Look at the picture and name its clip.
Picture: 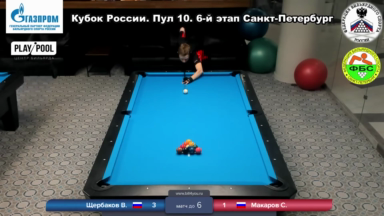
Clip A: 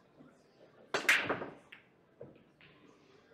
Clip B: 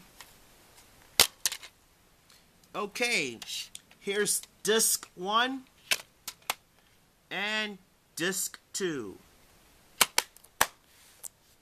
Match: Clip A